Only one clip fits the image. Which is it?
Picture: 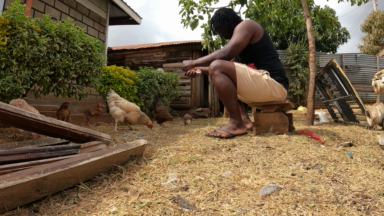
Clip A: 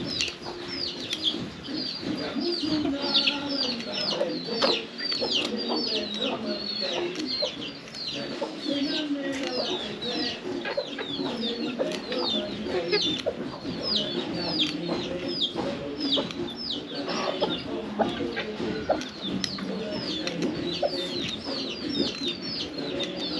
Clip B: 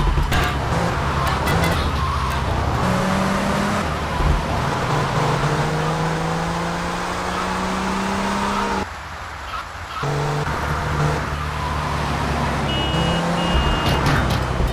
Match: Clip A